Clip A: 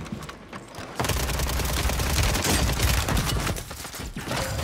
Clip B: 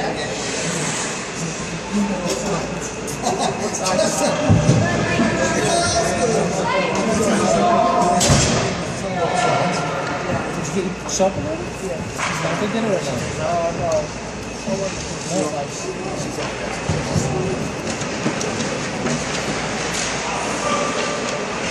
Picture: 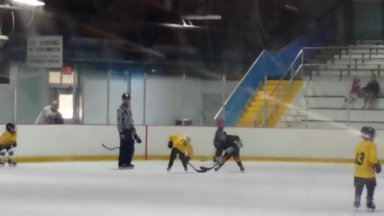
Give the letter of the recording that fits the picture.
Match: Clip B